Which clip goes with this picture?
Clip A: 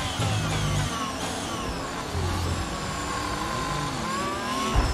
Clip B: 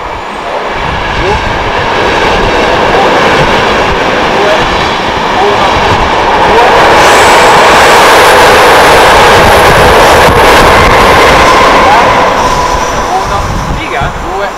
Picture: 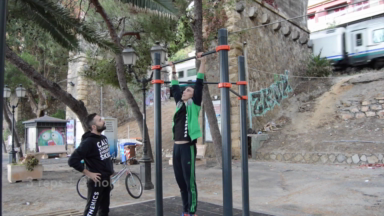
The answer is B